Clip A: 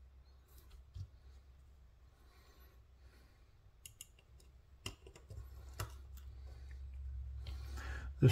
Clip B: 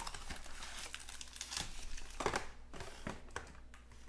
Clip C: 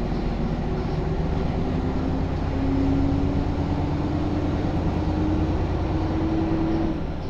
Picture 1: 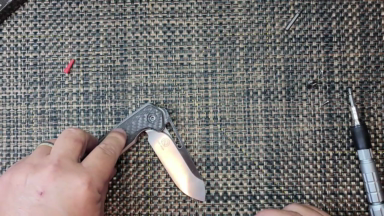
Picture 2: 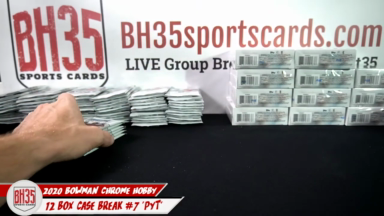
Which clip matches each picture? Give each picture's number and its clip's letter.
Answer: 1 A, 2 B